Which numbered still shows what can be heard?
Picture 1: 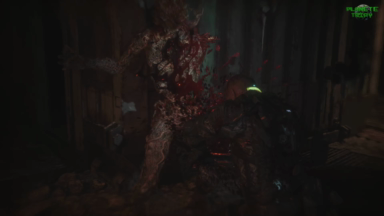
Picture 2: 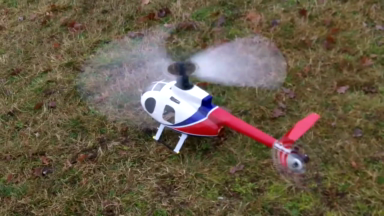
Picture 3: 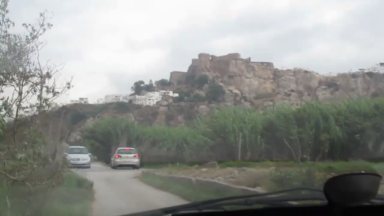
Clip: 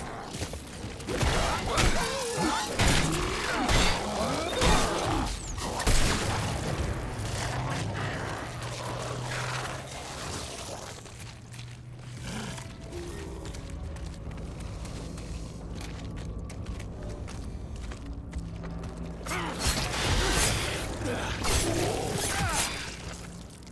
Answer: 1